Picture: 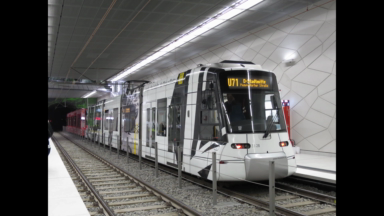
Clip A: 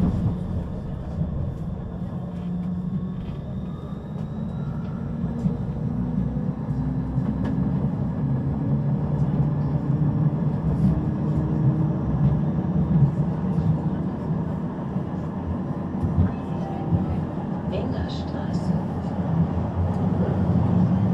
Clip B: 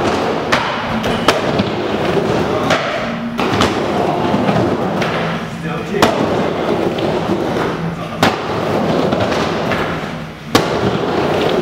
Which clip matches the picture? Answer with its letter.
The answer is A